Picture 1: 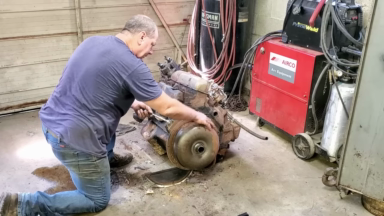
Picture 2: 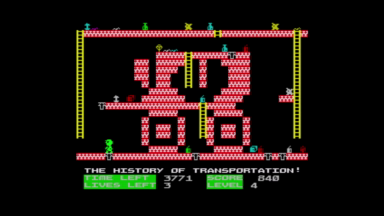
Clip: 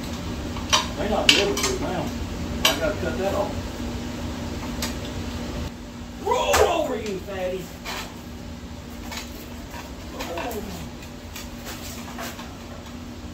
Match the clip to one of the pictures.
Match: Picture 1